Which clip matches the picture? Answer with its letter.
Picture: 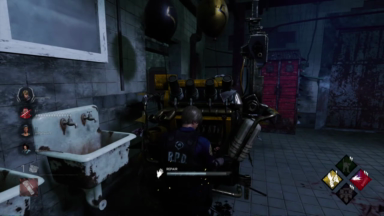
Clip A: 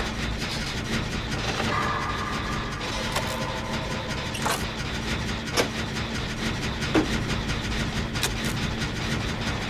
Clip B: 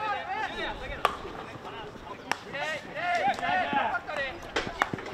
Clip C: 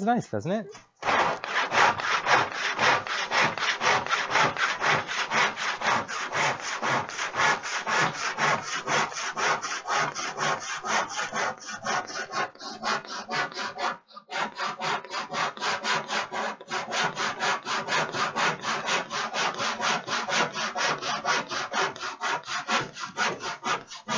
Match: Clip A